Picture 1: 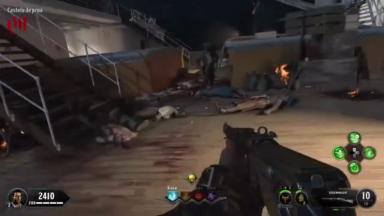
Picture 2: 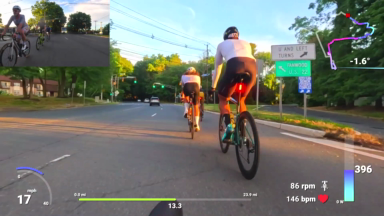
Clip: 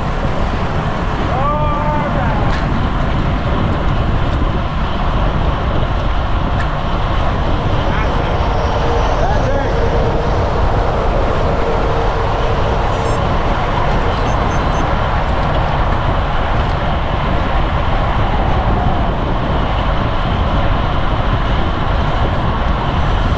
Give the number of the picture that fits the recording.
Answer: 2